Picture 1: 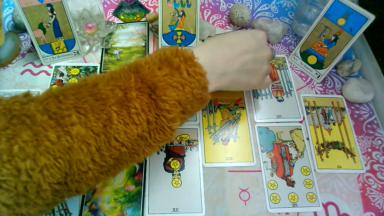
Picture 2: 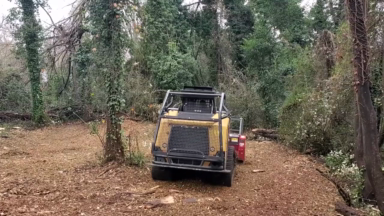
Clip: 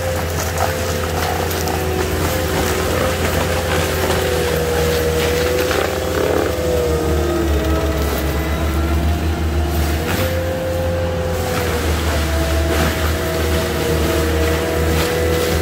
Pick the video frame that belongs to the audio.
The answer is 2